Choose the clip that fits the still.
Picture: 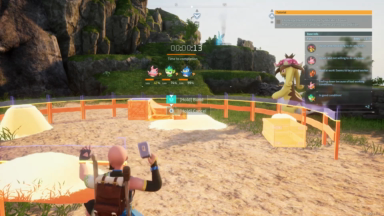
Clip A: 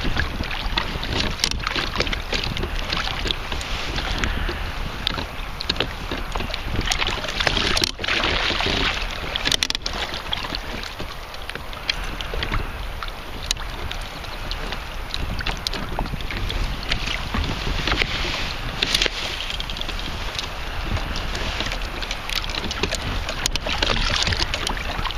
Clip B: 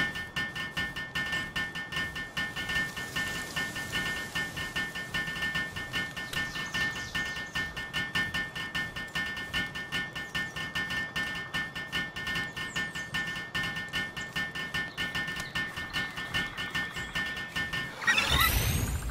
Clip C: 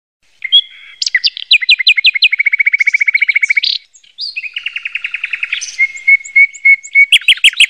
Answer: B